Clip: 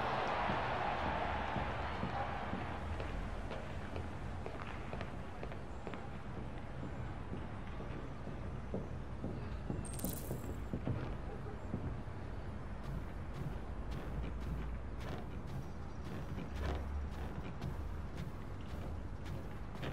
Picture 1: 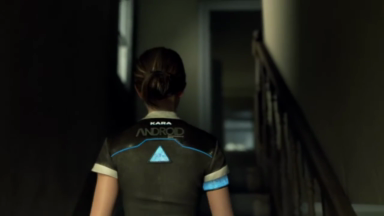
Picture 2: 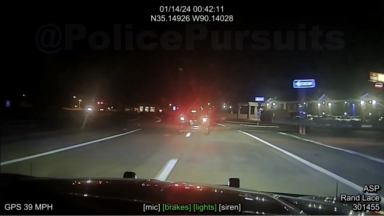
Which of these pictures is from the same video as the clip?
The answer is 1